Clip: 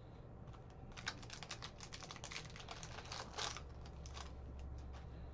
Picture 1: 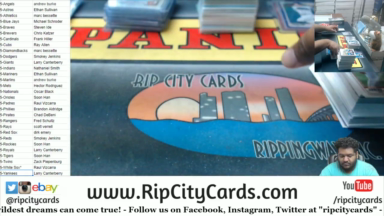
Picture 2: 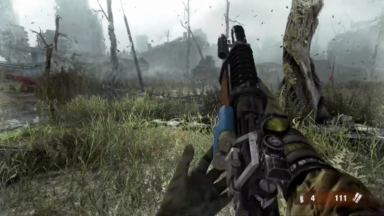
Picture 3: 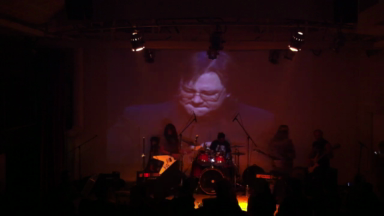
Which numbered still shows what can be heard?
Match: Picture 1